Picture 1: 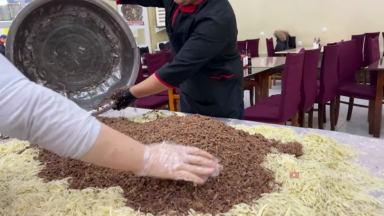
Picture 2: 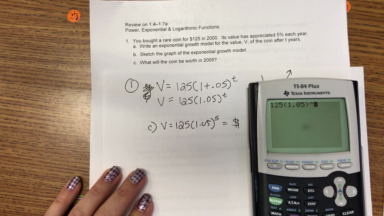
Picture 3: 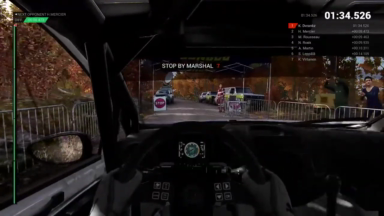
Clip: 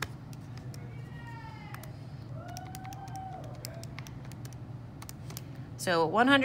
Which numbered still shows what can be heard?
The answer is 2